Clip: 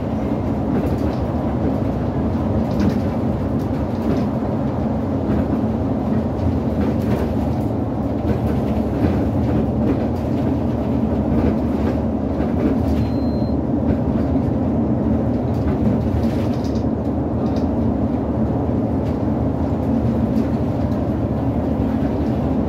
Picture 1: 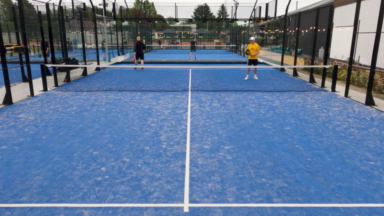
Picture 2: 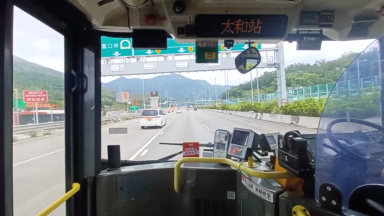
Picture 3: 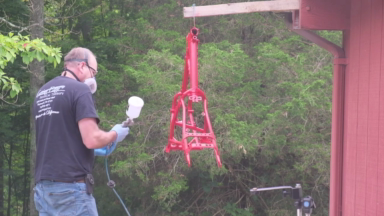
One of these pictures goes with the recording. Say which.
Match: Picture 2